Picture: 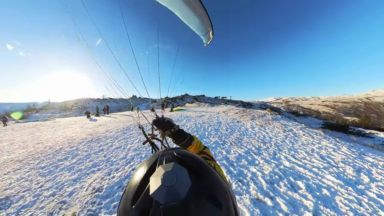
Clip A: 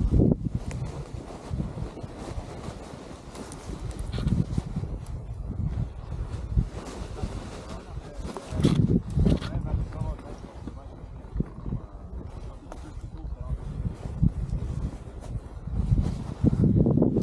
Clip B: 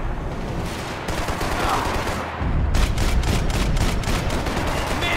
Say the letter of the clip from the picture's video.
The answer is A